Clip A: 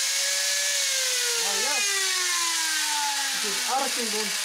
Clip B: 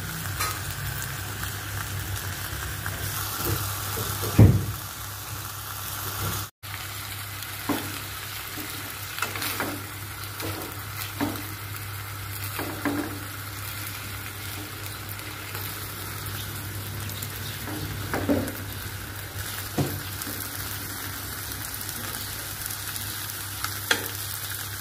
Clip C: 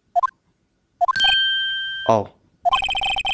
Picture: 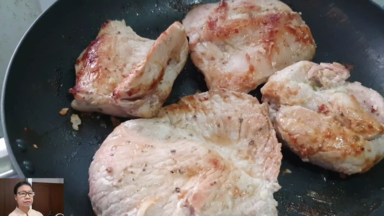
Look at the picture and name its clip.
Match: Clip B